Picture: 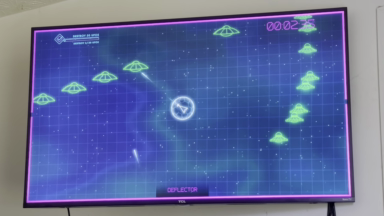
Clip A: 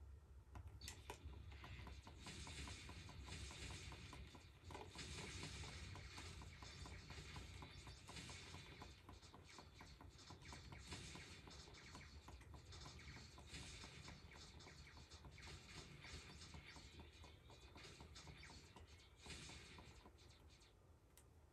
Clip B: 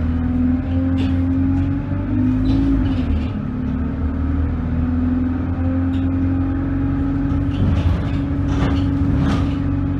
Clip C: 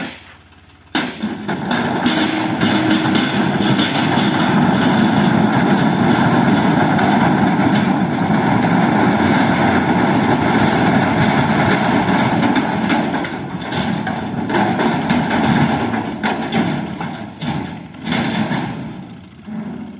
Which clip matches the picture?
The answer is A